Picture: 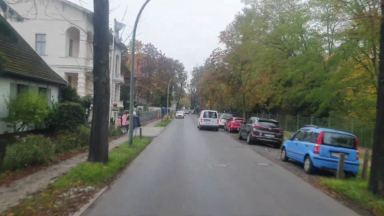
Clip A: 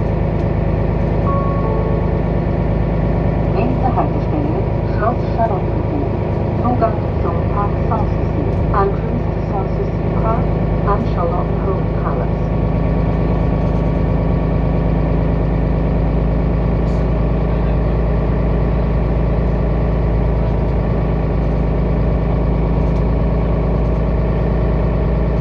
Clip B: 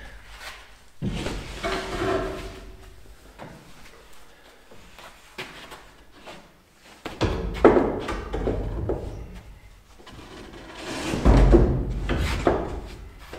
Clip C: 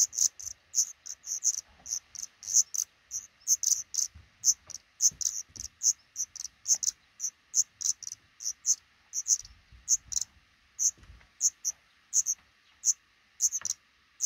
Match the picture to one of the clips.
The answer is A